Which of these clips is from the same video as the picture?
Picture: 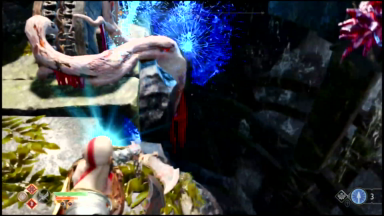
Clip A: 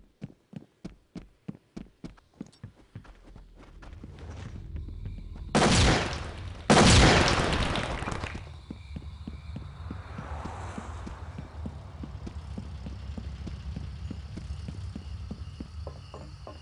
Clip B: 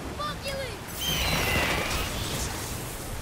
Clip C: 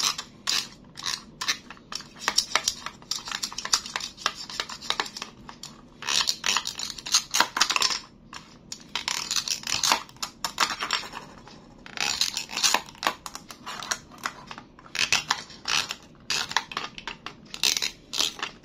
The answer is B